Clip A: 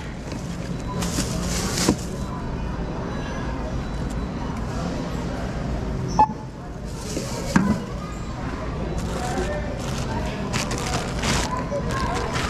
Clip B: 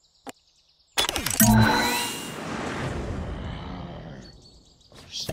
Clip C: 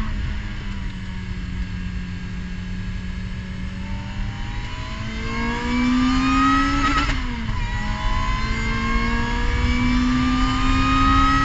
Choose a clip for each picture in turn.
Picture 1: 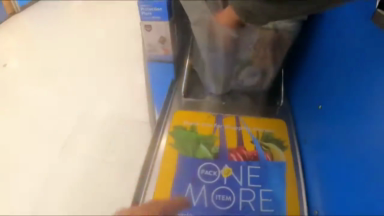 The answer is A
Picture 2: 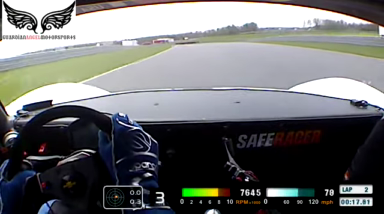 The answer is C